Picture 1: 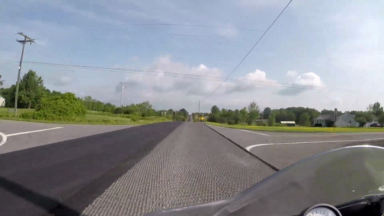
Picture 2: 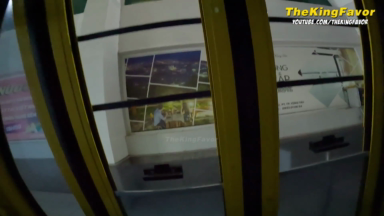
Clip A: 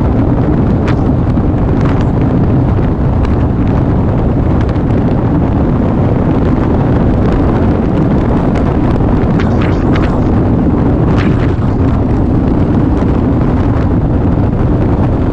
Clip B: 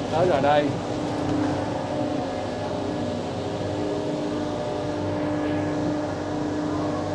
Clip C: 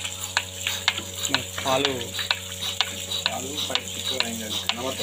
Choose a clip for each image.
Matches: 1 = A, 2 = B